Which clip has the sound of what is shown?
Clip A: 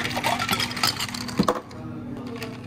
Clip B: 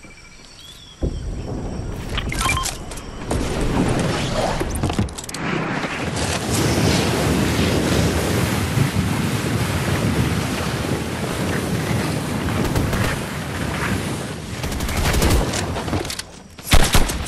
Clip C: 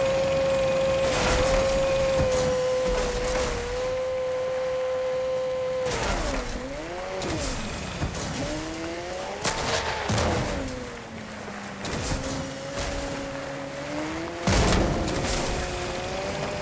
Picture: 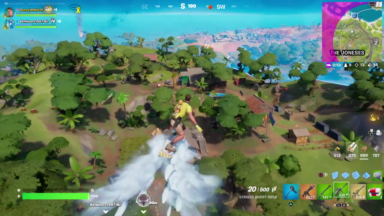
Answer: B